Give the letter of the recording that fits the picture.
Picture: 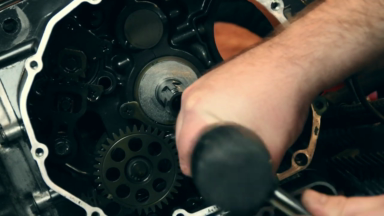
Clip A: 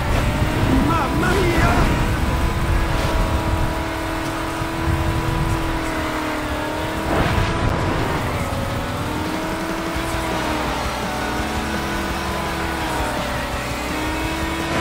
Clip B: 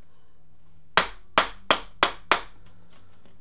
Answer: B